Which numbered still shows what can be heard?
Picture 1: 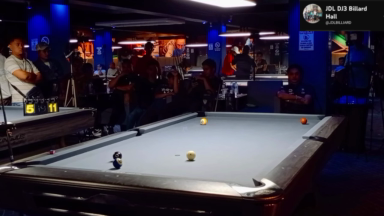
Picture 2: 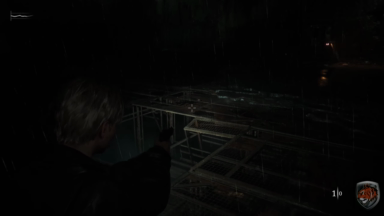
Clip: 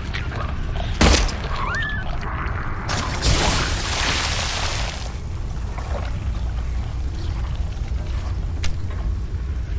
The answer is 2